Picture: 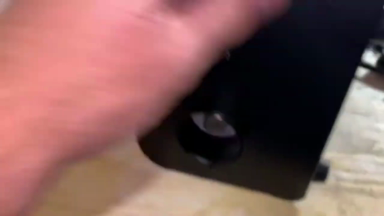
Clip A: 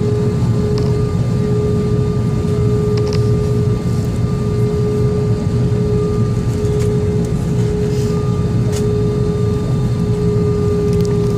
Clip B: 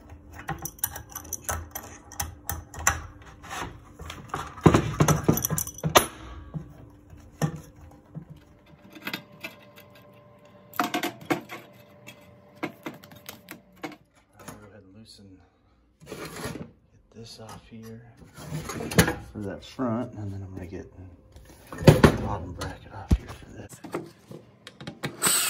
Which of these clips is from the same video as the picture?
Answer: B